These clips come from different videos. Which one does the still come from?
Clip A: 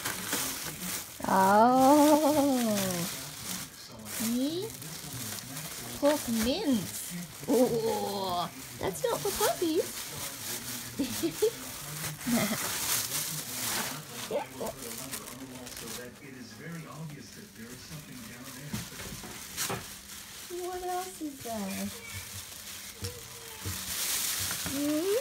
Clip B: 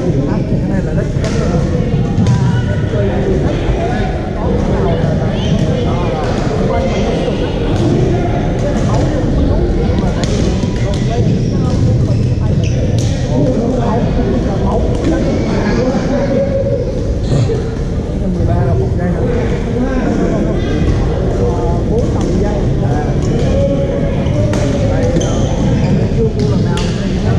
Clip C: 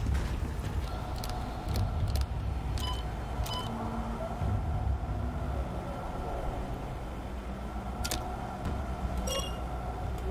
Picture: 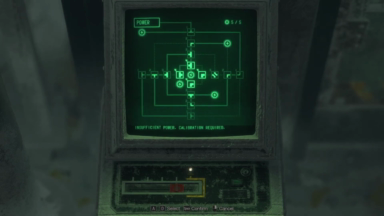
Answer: C